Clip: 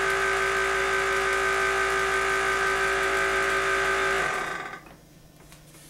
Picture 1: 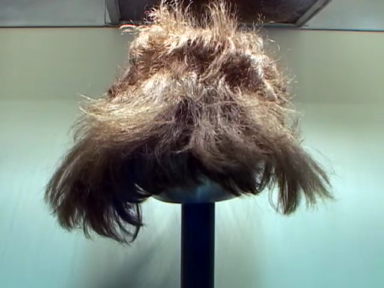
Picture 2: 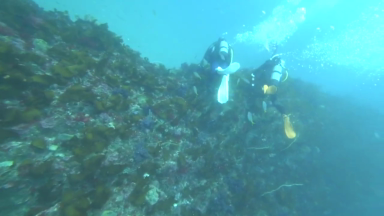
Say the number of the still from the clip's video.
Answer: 1